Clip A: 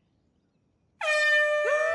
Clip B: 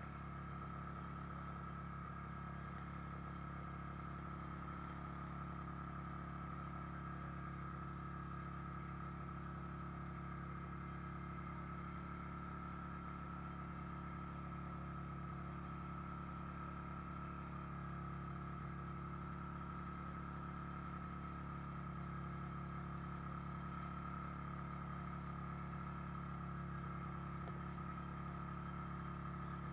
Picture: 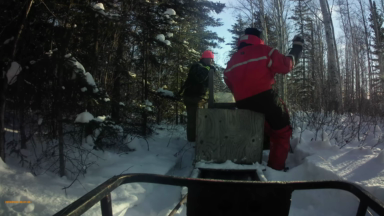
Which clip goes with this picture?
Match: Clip B